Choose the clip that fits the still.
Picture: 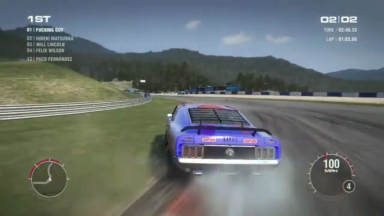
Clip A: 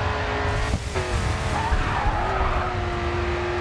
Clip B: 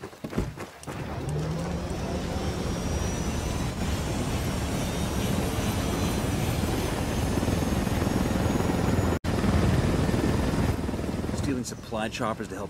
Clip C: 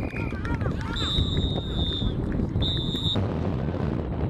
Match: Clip A